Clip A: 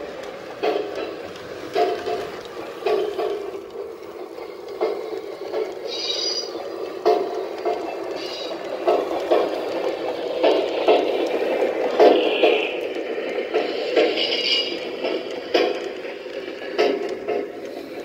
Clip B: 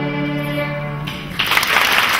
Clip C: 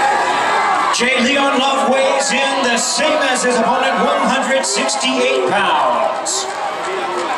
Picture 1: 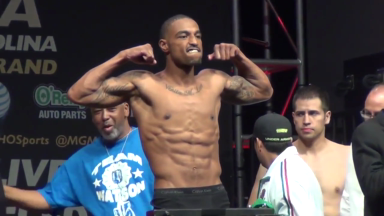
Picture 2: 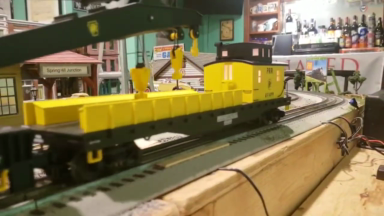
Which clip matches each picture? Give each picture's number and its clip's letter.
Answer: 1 C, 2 A